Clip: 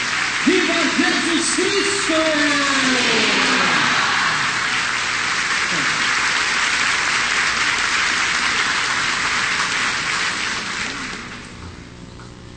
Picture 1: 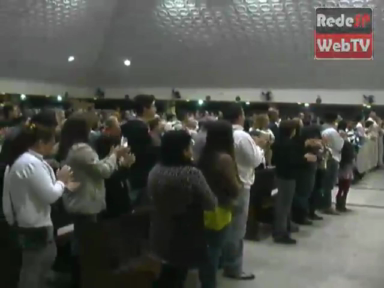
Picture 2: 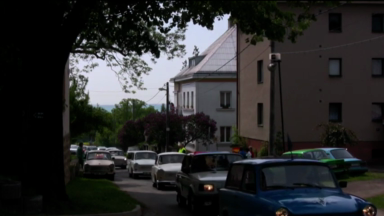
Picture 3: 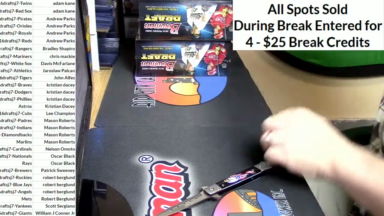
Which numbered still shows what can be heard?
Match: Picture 1